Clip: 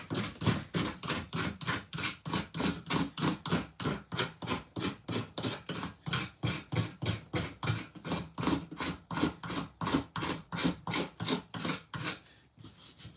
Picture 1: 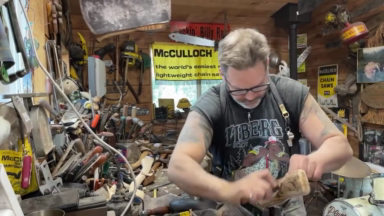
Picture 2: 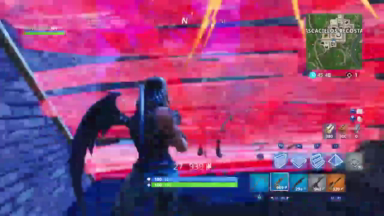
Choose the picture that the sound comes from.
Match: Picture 1